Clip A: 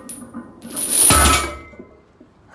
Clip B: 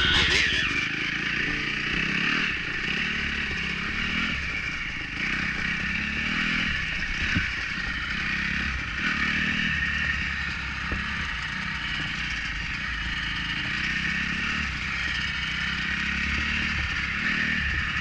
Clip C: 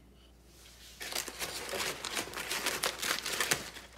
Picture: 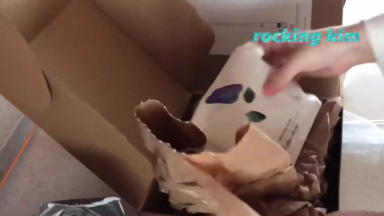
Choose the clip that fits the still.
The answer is C